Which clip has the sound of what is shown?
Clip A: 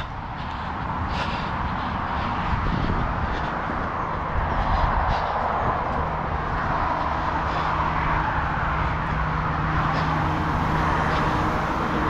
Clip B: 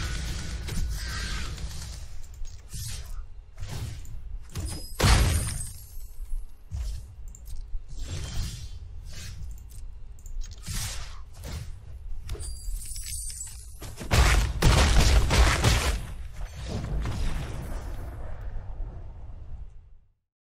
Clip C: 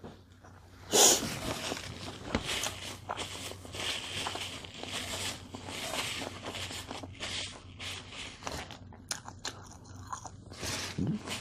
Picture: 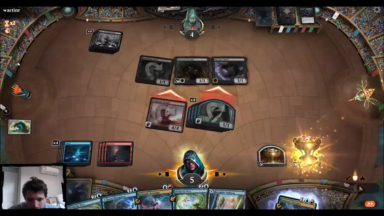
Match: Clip B